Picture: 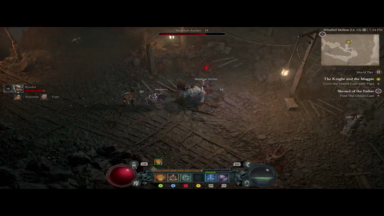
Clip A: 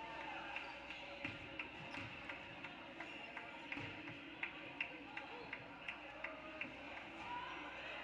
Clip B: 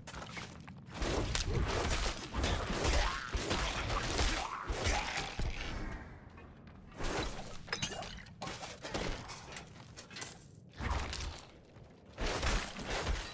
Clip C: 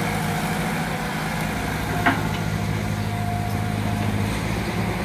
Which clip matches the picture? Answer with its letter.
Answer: B